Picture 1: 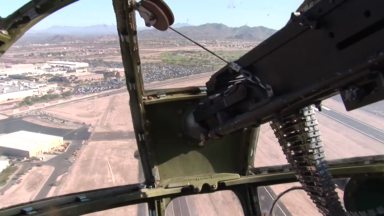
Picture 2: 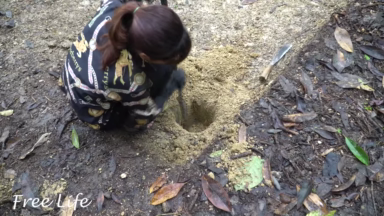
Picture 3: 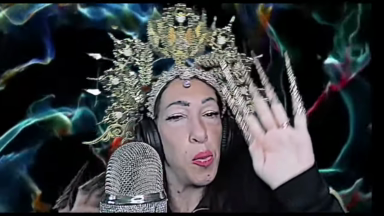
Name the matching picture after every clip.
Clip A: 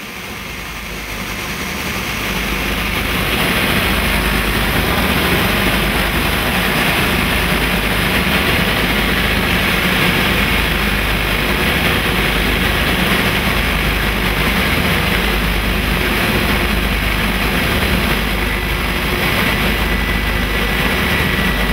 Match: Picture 1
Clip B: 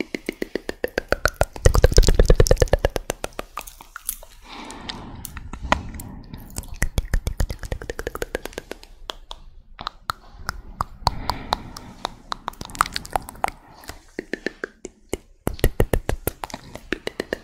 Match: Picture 3